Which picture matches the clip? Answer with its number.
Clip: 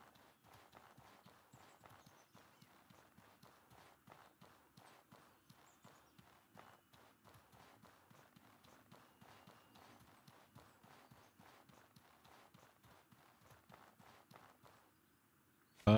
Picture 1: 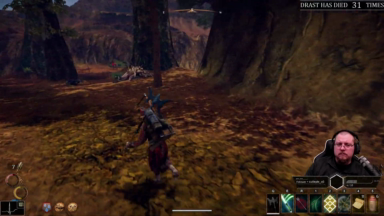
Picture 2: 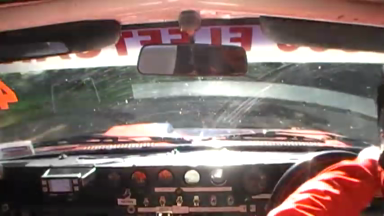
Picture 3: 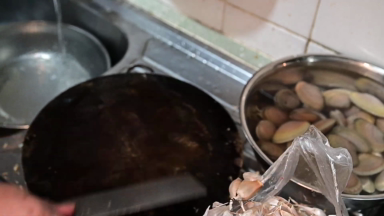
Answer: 1